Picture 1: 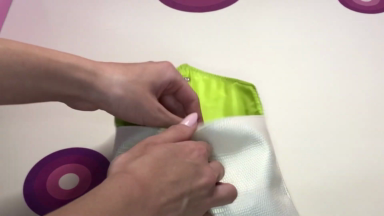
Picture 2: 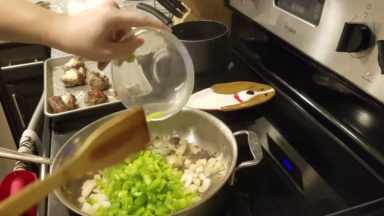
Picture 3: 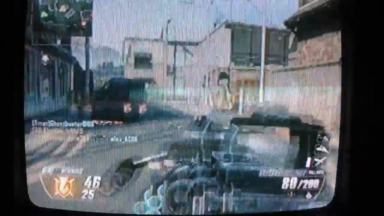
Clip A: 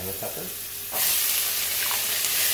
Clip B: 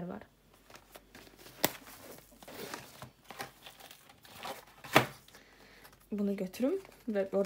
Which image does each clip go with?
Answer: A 2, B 1